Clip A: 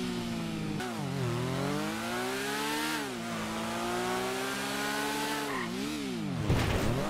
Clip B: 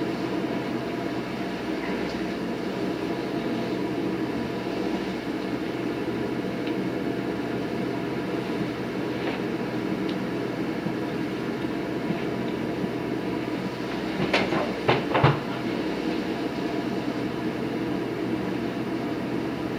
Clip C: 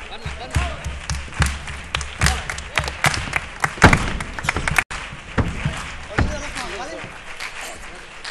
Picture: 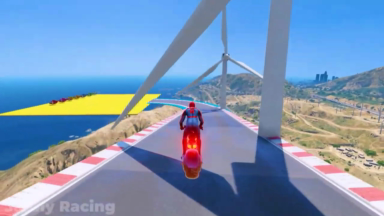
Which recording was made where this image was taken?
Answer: A